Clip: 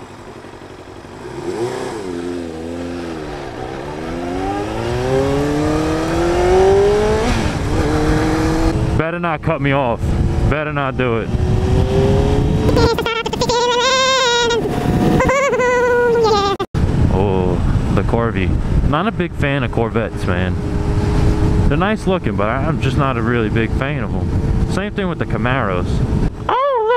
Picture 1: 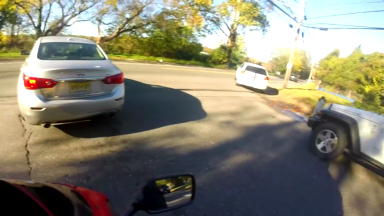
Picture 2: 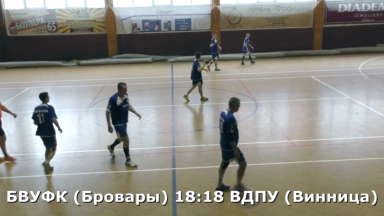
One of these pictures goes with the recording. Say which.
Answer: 1